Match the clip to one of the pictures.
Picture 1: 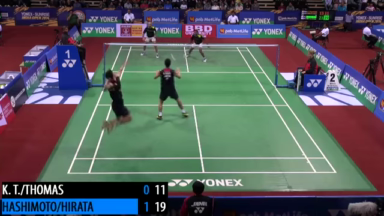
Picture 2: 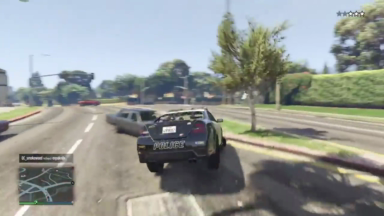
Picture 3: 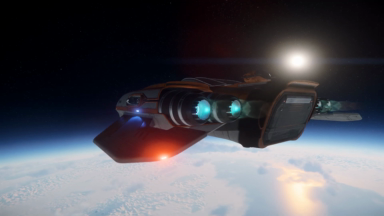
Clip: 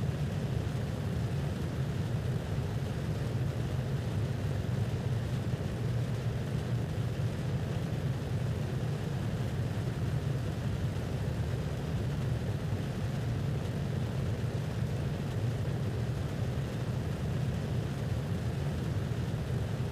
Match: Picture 3